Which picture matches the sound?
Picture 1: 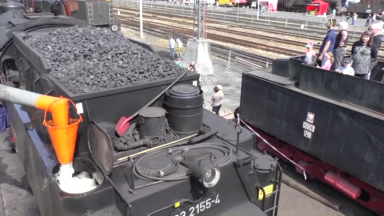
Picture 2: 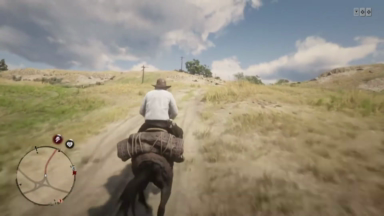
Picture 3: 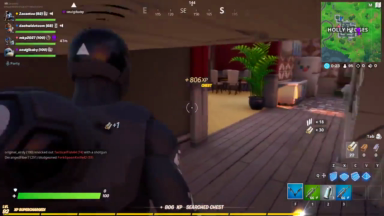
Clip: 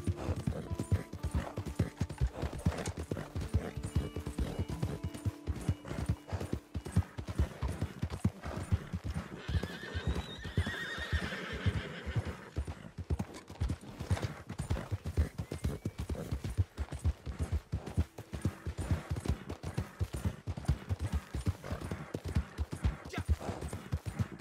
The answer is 2